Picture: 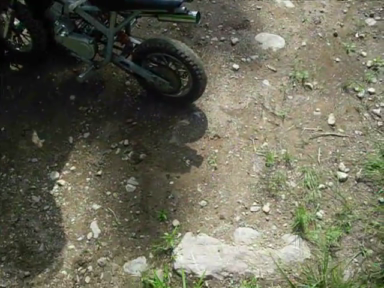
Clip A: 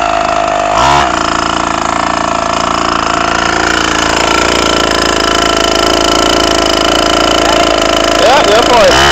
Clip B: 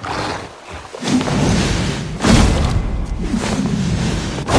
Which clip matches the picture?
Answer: A